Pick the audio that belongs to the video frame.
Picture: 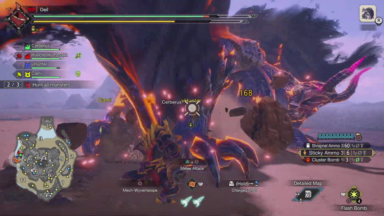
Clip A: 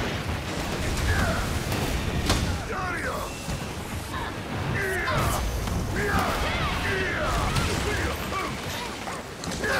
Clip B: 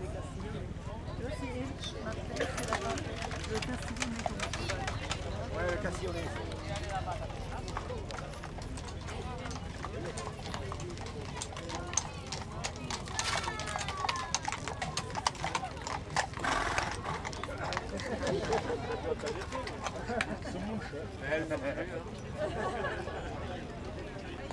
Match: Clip A